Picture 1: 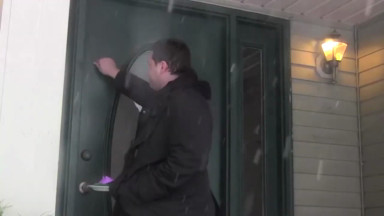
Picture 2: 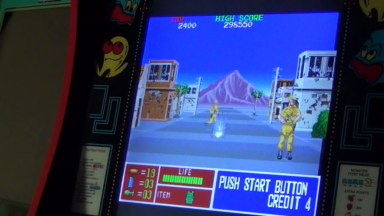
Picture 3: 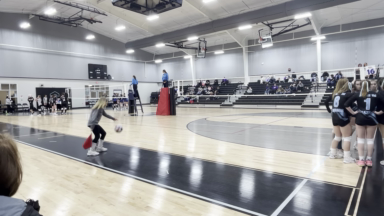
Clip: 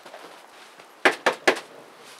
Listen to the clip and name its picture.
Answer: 1